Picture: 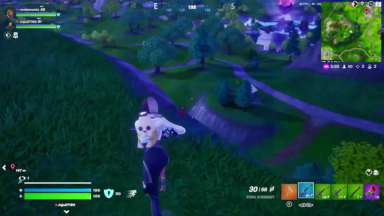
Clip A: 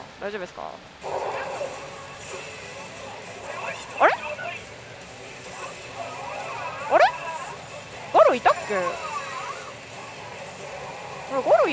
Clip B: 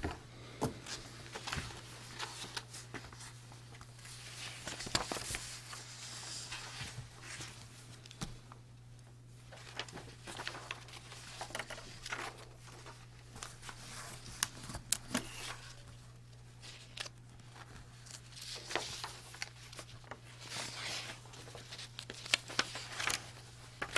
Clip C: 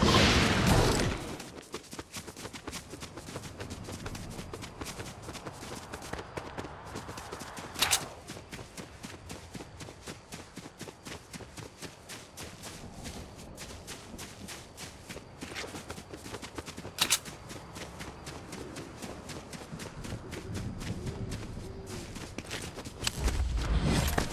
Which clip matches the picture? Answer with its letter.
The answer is C